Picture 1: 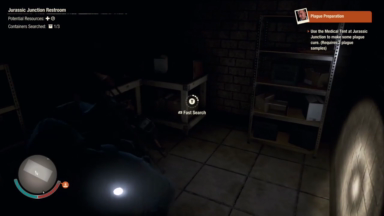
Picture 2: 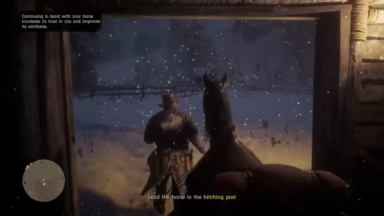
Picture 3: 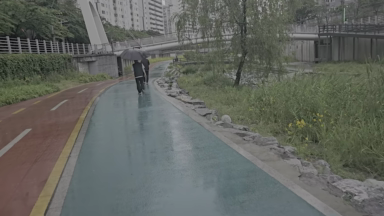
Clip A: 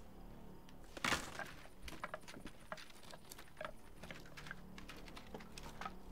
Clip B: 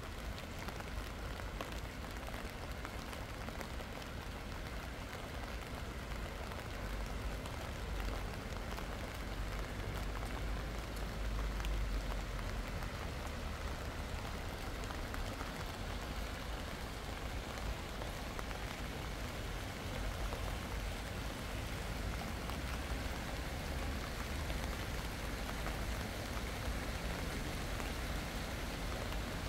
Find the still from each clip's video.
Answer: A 1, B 3